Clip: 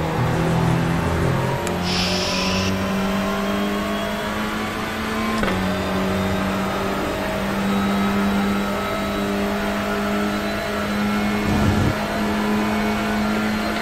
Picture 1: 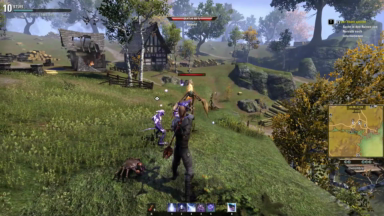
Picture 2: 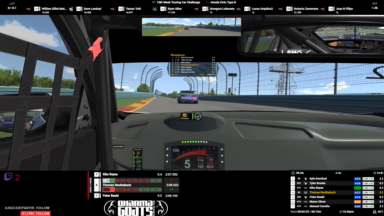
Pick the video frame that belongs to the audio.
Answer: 2